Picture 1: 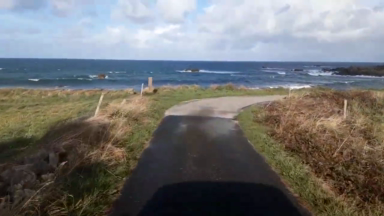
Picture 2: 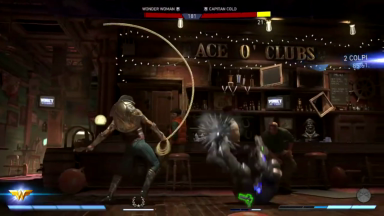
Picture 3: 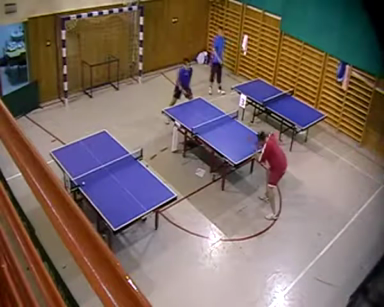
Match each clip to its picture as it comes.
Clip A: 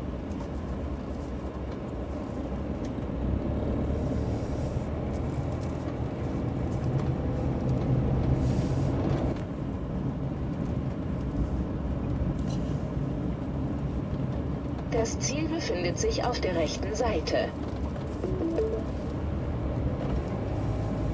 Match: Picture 1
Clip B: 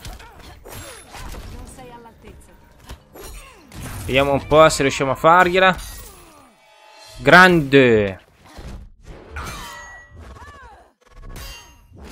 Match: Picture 2